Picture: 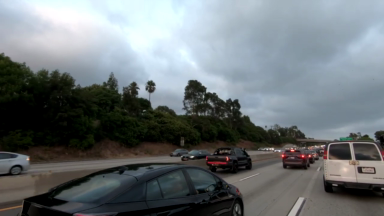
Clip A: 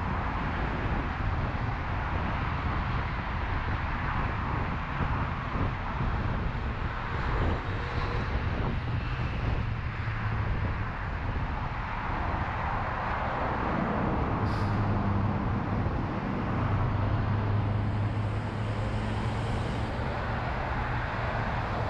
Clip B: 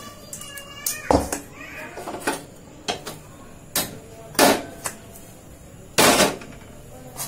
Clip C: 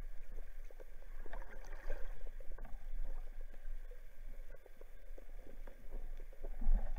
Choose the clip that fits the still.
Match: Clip A